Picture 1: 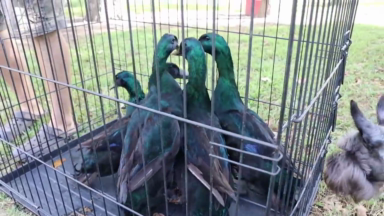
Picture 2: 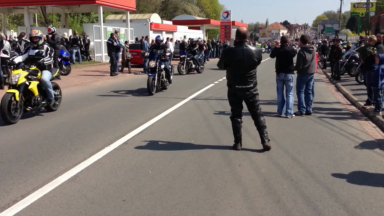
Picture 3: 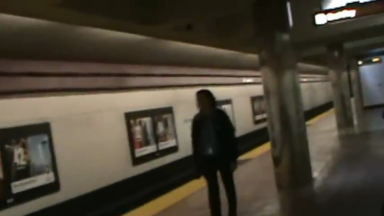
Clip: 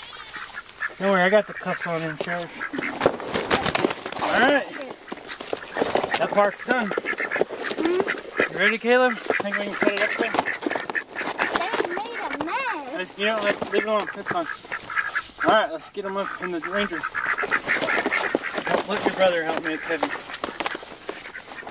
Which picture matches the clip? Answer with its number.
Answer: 1